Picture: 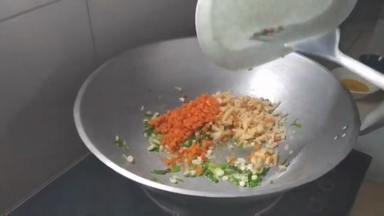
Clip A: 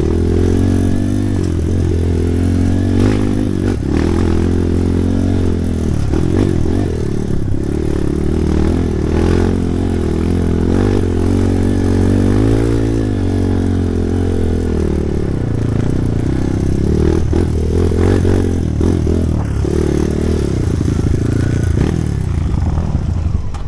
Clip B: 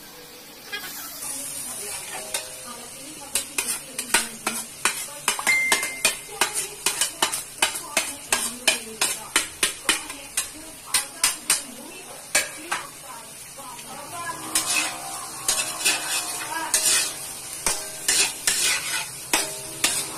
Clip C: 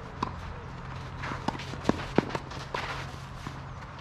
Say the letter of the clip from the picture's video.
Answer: B